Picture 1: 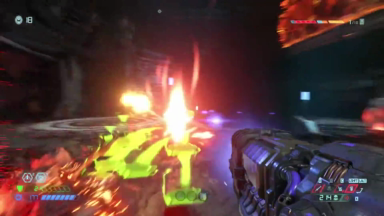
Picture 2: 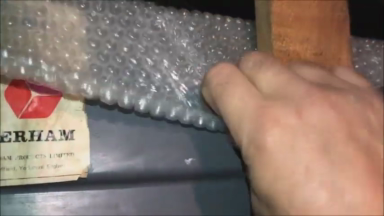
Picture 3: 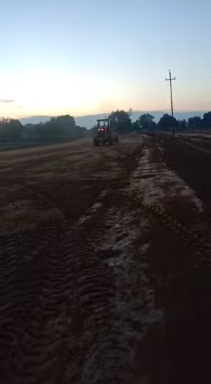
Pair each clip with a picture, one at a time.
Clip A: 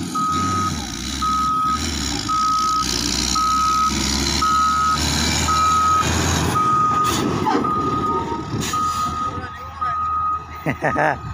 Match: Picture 3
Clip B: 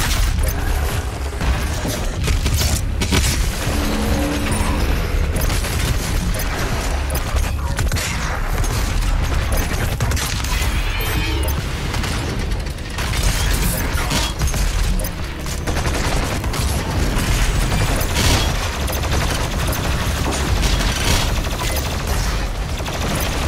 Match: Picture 1